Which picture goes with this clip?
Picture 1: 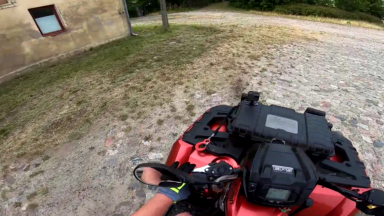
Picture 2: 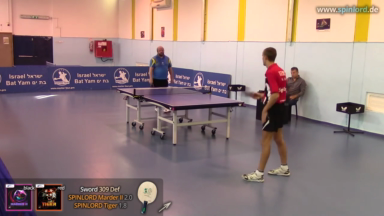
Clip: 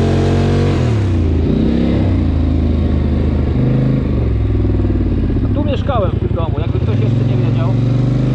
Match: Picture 1